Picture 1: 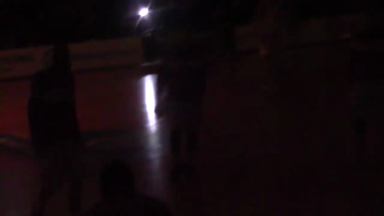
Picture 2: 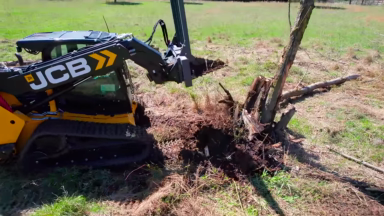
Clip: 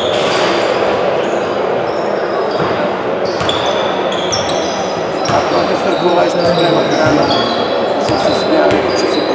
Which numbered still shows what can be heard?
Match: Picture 1